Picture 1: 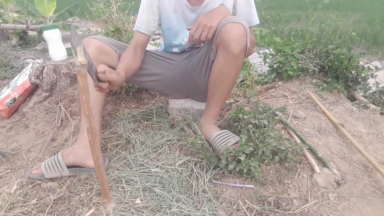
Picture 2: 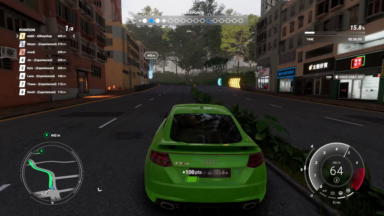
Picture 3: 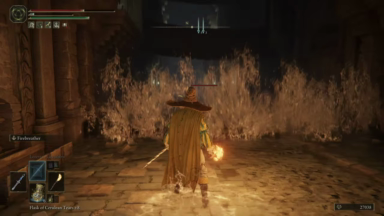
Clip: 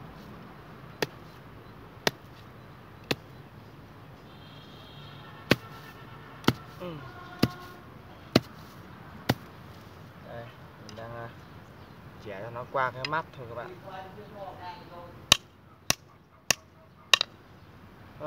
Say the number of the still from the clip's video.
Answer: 1